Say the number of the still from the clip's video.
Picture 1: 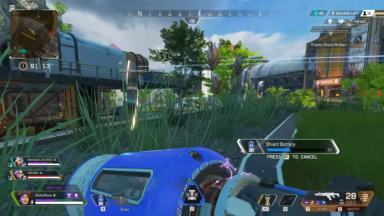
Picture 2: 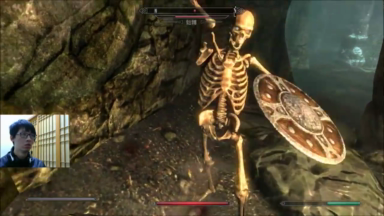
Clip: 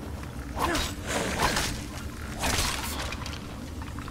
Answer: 2